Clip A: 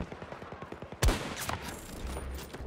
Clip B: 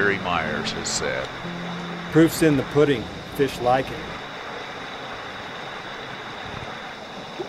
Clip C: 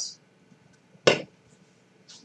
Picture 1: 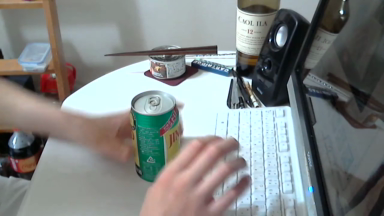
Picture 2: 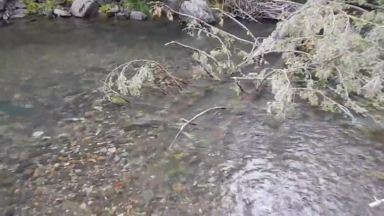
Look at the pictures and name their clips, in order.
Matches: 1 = C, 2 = B